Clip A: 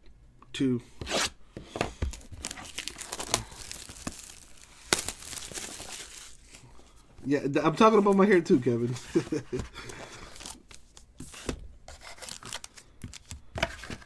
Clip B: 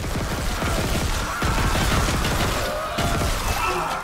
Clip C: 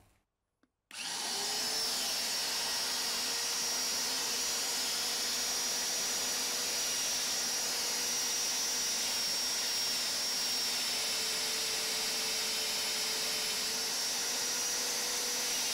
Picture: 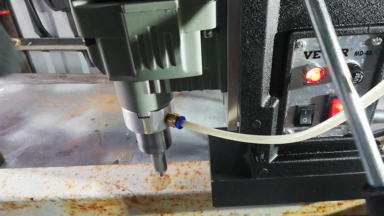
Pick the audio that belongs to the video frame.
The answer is C